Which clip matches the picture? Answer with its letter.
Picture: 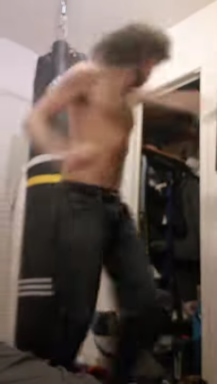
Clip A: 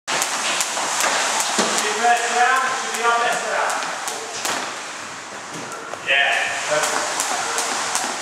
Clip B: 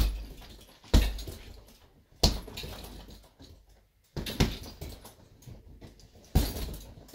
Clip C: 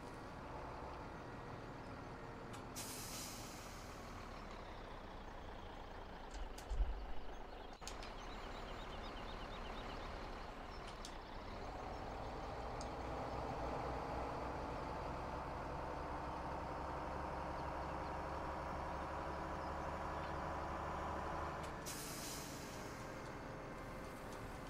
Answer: B